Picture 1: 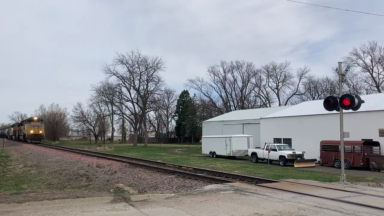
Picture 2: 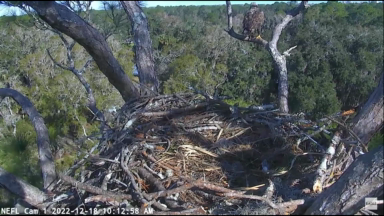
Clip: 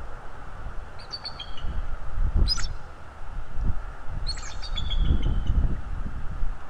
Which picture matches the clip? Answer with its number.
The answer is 2